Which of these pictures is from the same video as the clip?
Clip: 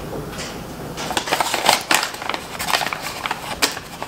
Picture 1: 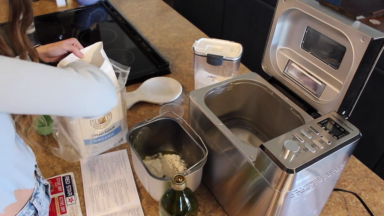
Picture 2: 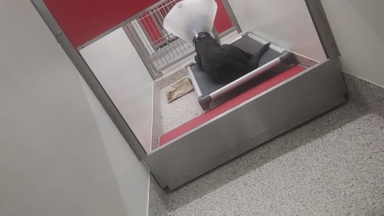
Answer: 1